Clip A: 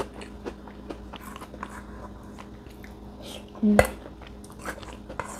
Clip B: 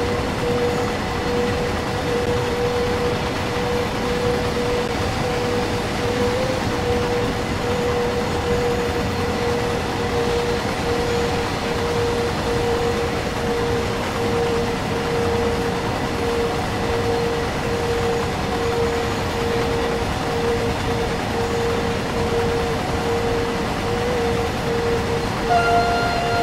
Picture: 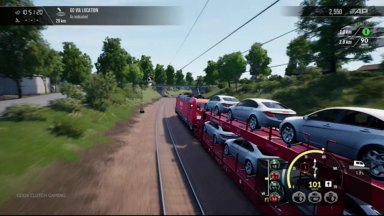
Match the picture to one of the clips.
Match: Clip B